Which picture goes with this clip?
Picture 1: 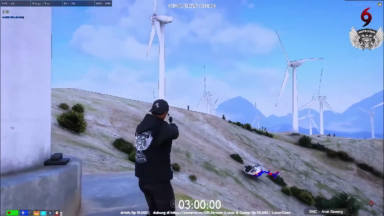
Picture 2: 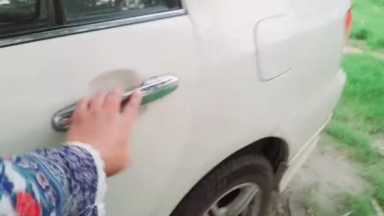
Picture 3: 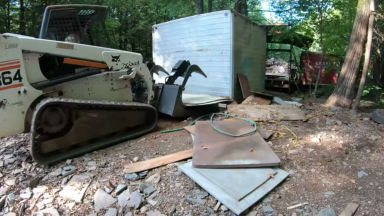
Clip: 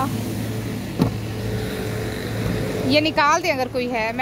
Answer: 2